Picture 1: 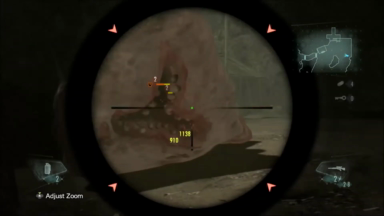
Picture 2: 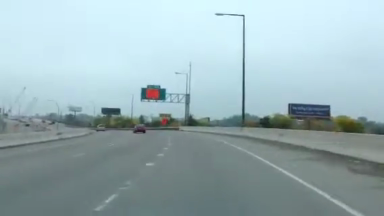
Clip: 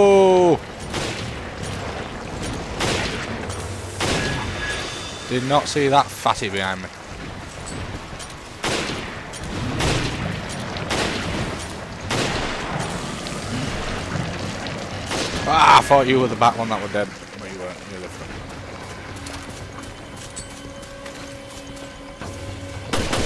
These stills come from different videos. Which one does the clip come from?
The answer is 1